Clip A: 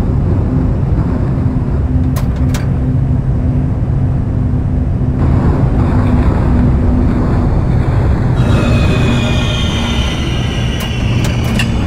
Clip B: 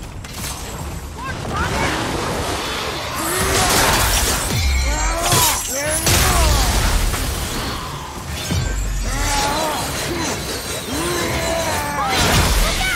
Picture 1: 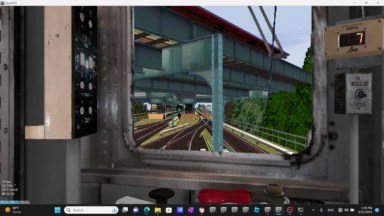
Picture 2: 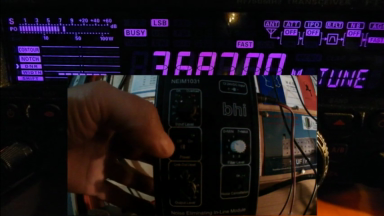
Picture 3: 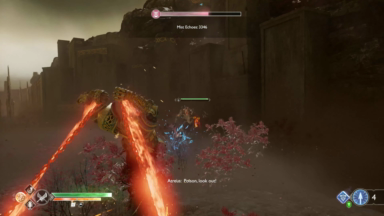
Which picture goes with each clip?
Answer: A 1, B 3